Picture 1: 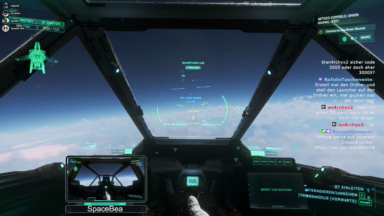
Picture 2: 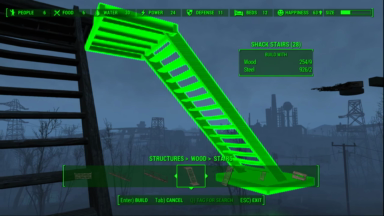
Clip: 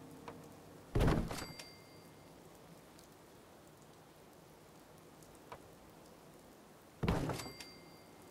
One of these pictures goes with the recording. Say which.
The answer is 2